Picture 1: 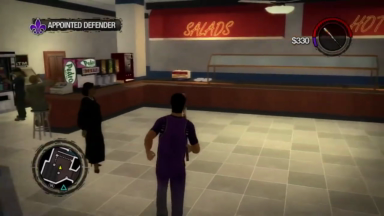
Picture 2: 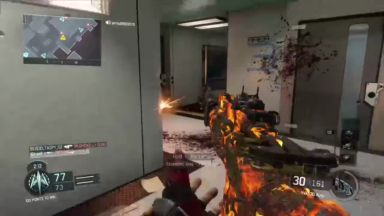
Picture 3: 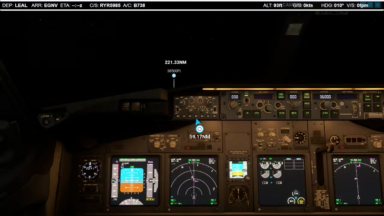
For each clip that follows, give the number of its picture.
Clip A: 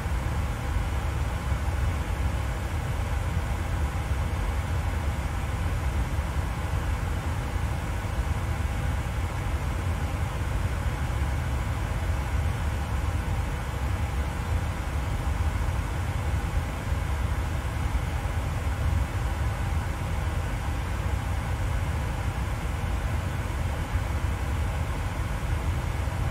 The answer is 3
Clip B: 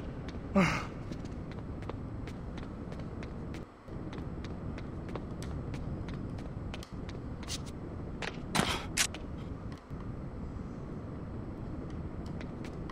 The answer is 1